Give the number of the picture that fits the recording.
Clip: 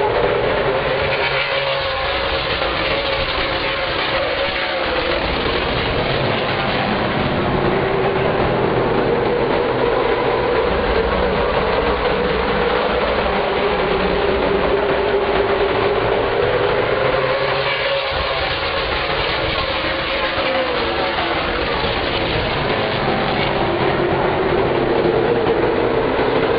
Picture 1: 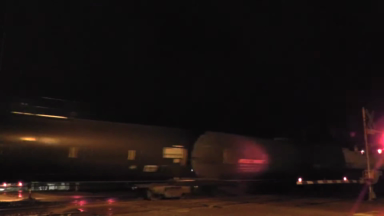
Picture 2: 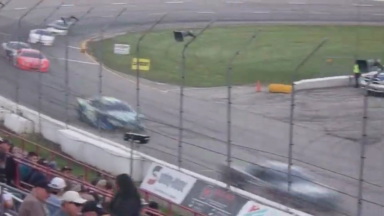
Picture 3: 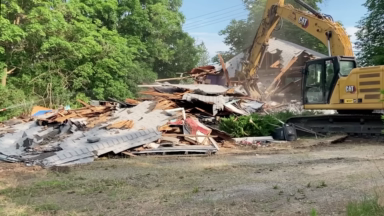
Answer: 2